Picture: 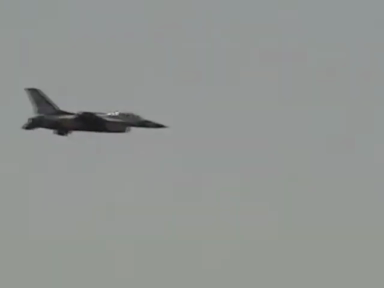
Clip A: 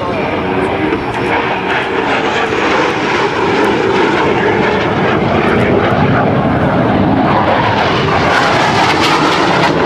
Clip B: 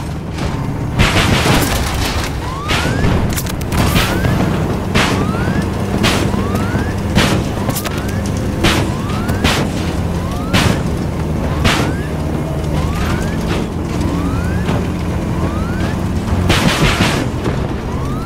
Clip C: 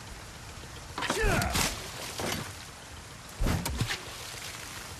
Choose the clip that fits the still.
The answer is A